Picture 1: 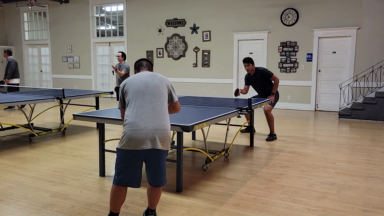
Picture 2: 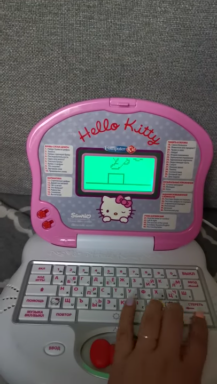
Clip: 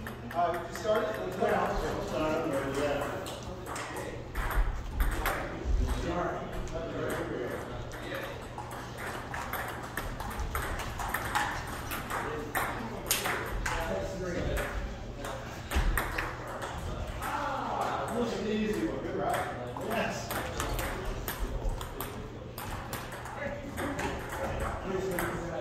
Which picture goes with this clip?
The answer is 1